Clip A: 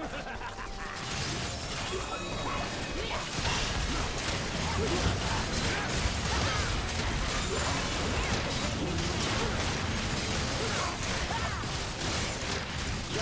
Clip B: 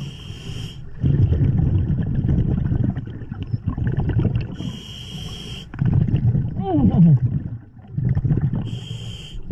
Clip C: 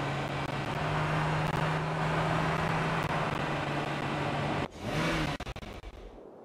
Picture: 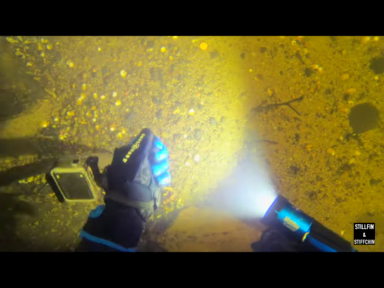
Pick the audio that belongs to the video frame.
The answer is B